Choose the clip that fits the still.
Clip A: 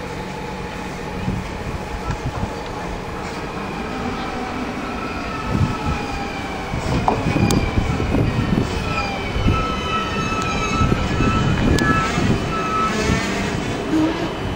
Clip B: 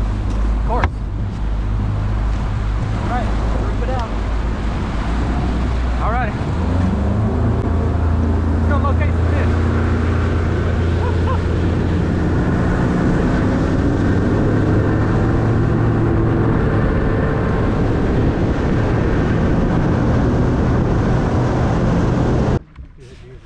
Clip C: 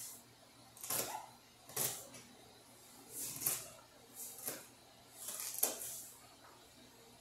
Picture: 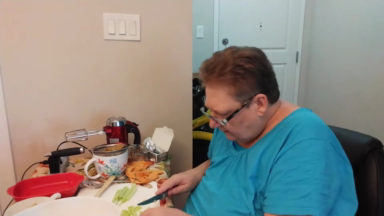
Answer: C